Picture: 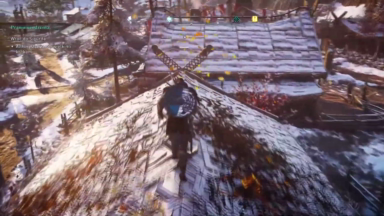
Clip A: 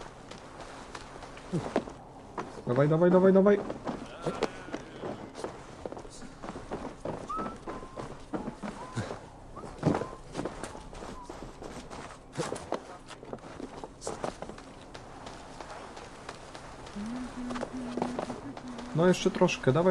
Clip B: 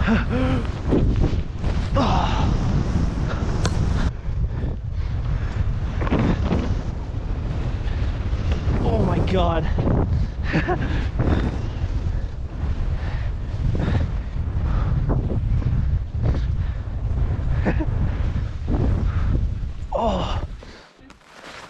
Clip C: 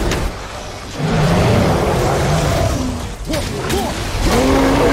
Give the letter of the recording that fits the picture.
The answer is A